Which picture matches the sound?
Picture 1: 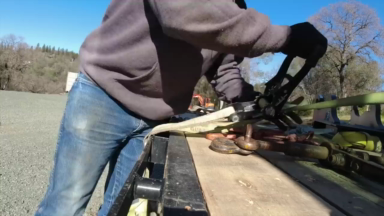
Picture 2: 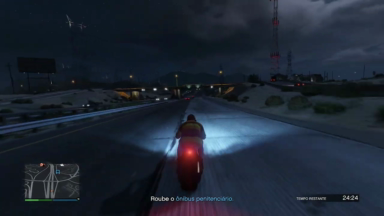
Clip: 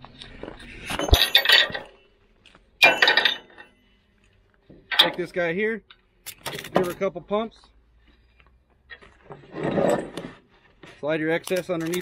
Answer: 1